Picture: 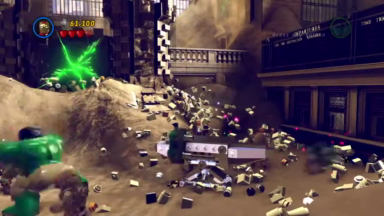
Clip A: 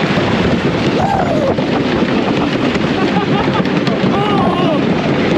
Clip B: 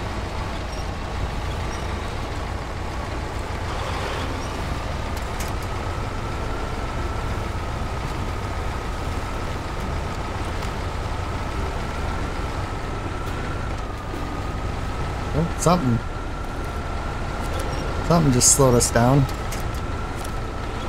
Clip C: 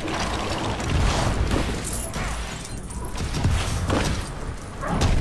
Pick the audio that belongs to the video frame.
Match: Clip C